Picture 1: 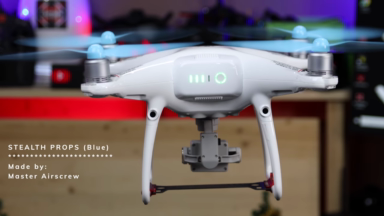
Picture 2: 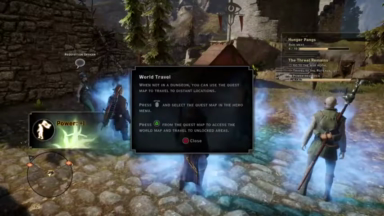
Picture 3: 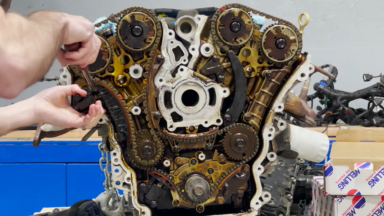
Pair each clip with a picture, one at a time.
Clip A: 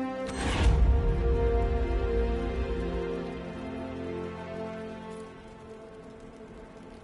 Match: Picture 2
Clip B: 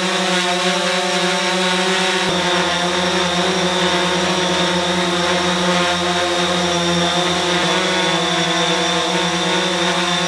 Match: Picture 1